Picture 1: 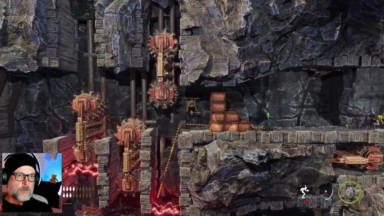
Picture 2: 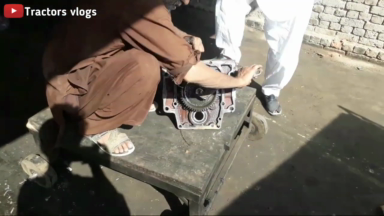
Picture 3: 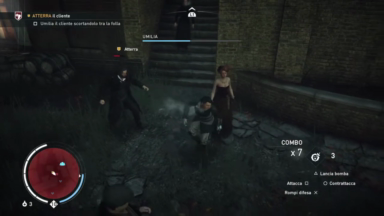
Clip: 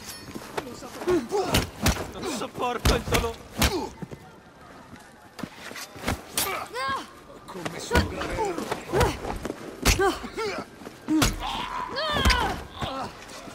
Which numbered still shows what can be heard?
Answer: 3